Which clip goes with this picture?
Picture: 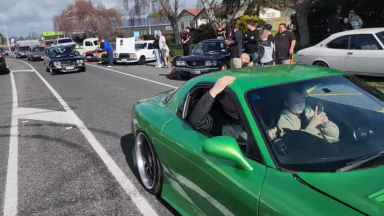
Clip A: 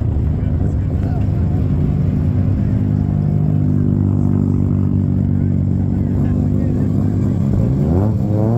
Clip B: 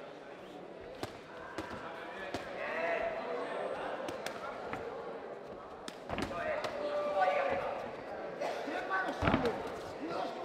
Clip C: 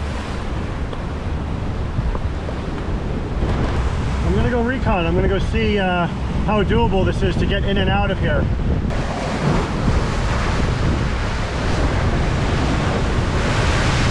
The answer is A